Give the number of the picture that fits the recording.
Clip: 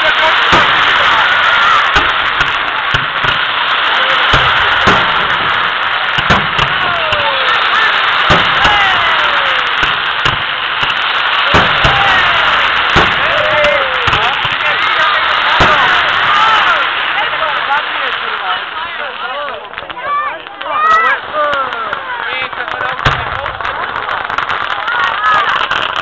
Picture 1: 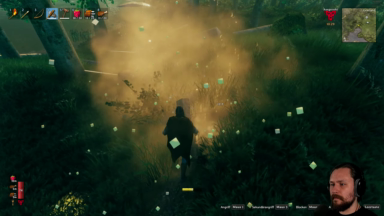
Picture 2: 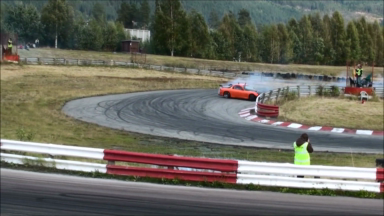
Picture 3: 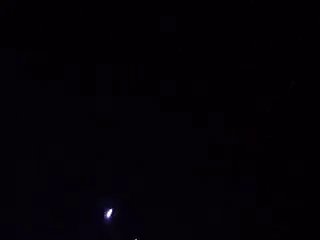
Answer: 3